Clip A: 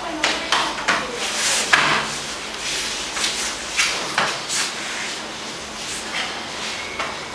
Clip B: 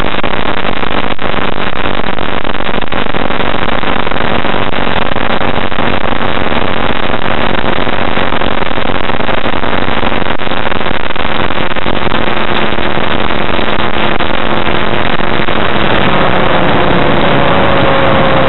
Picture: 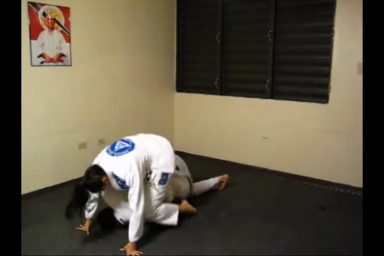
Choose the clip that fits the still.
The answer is A